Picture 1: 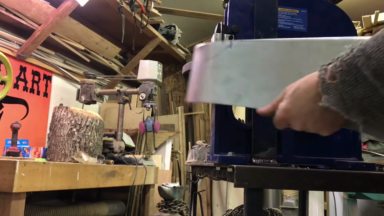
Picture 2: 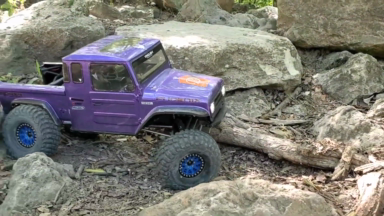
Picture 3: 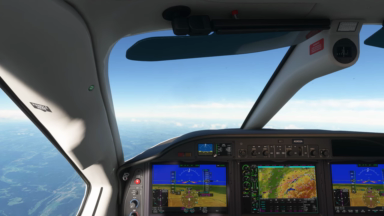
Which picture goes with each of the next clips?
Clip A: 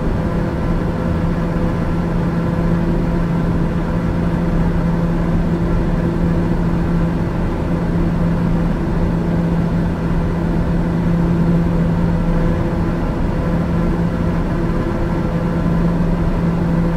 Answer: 3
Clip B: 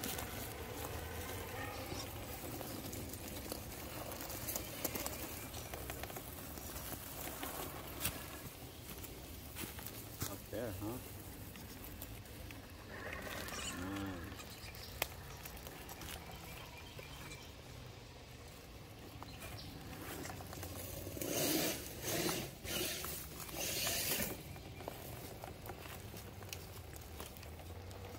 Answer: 2